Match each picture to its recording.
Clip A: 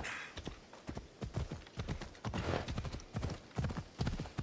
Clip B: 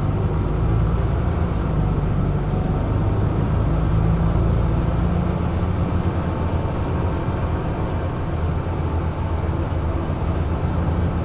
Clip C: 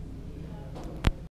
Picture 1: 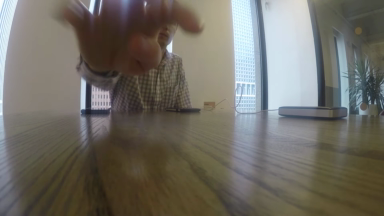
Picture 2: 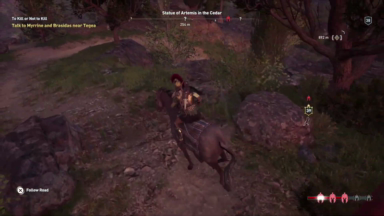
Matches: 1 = C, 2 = A